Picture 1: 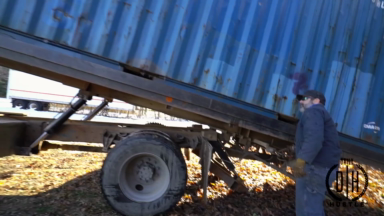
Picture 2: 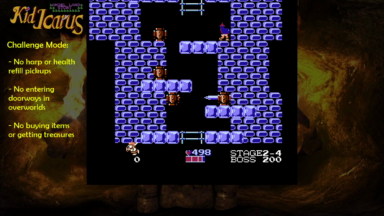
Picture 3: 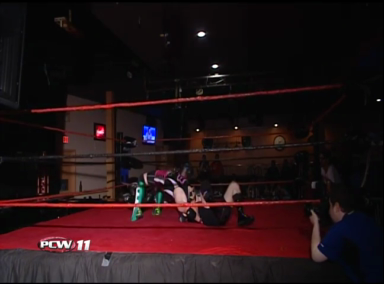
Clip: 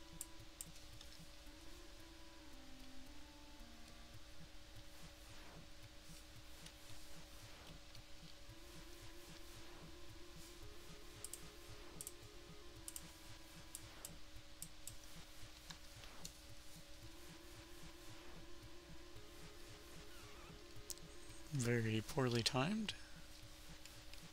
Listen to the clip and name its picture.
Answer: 2